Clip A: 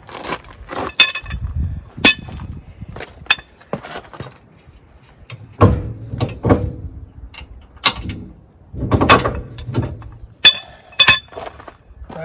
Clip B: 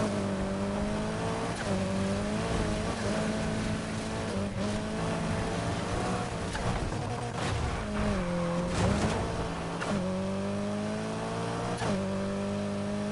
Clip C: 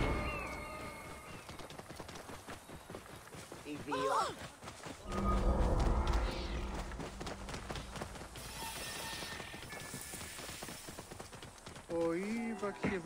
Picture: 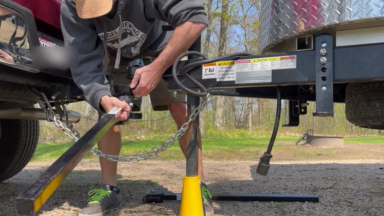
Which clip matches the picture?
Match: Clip A